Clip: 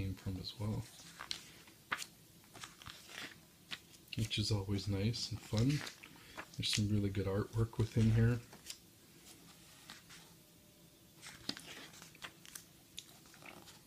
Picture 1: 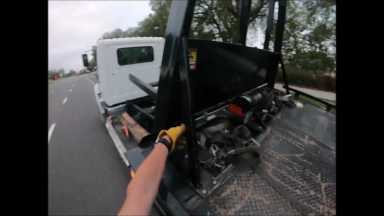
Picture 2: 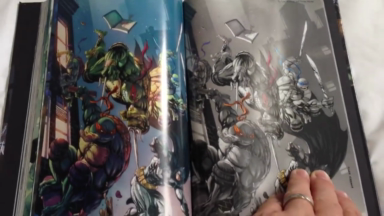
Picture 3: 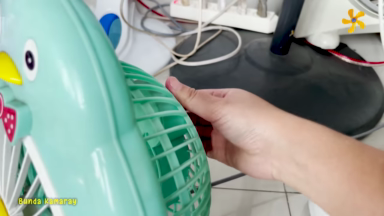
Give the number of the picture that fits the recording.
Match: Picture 2